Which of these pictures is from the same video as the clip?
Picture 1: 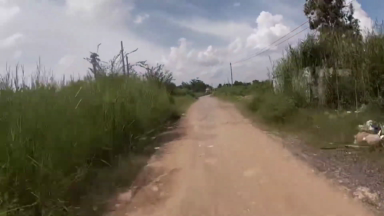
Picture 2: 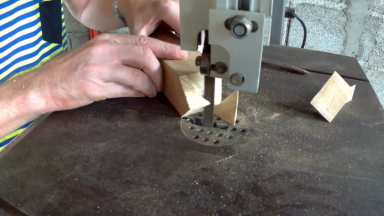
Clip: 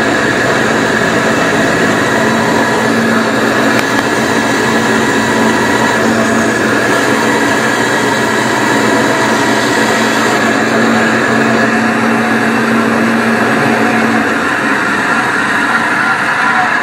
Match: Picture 2